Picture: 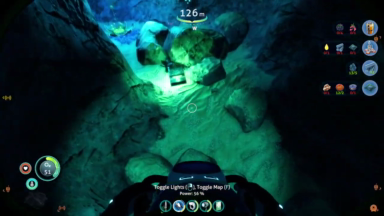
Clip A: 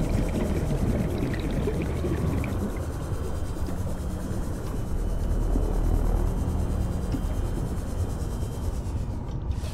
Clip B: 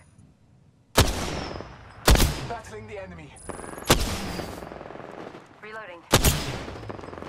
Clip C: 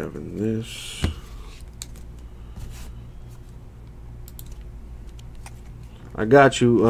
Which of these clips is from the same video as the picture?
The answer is A